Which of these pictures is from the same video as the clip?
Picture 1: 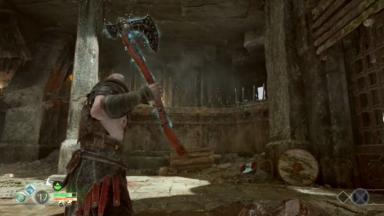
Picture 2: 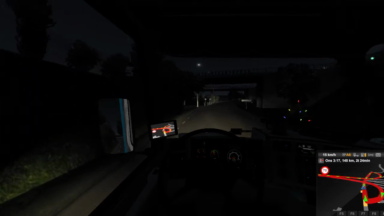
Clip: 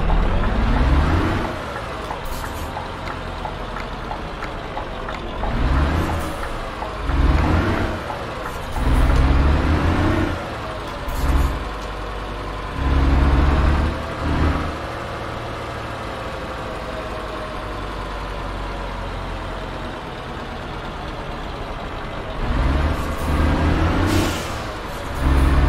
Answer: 2